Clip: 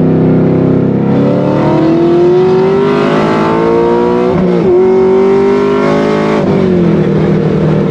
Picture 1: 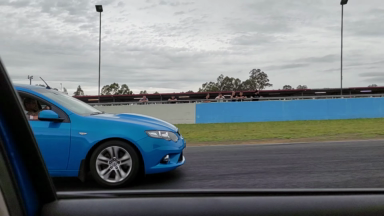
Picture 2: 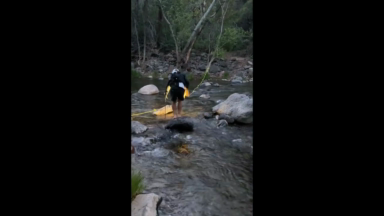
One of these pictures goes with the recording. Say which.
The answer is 1